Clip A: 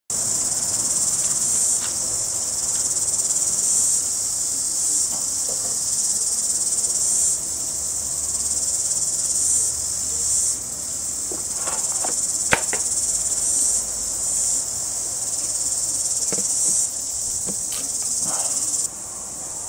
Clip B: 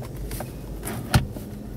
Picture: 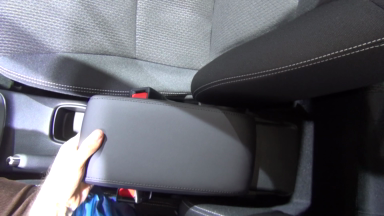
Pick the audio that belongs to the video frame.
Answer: B